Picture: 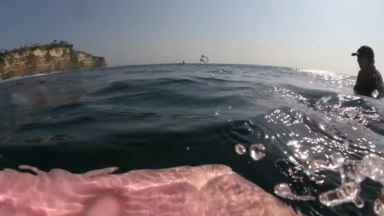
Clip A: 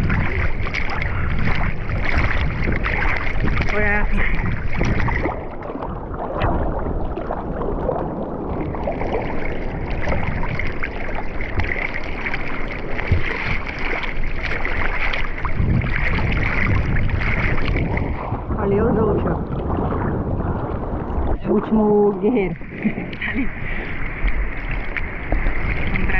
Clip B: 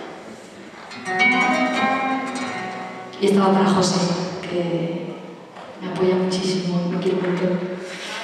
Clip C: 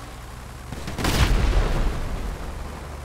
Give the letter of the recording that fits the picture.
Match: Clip A